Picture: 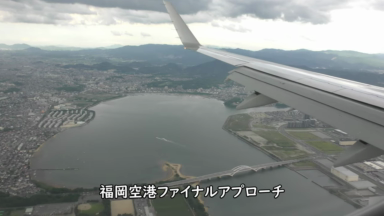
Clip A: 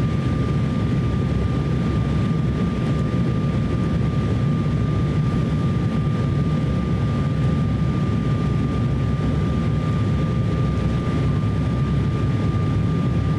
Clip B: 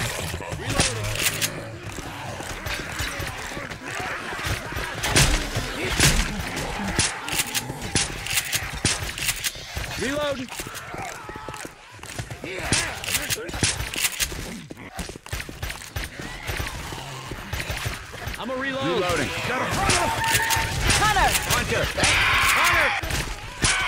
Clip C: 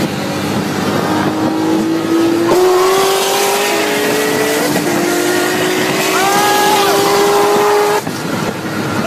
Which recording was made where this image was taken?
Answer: A